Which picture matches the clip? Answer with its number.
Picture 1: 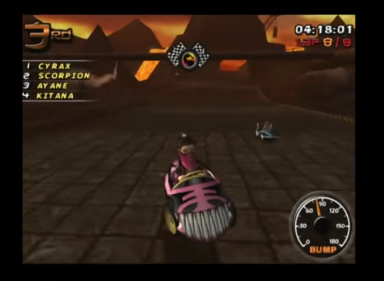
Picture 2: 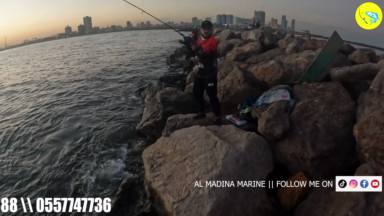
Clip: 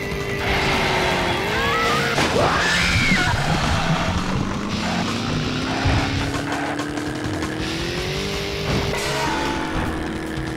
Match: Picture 1